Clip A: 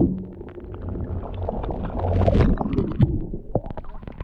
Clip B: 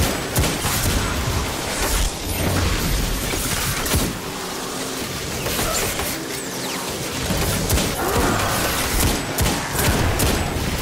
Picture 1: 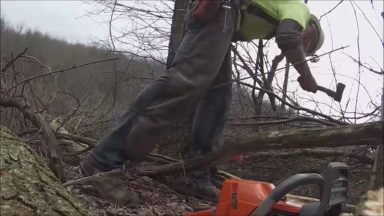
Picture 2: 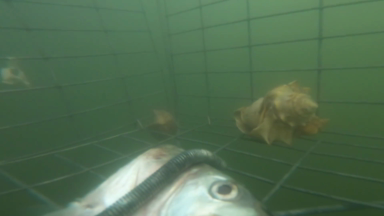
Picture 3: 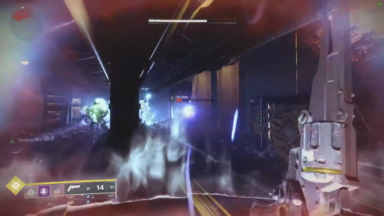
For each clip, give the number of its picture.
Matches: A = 2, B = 3